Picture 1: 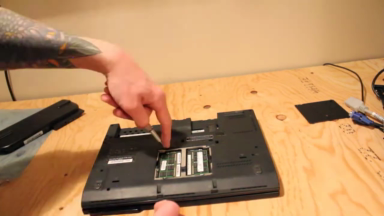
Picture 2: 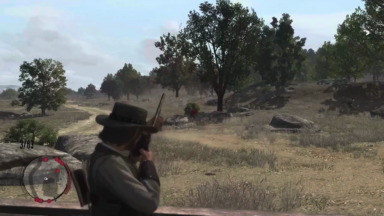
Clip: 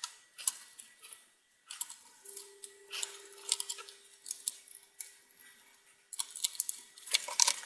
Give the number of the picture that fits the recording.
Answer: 1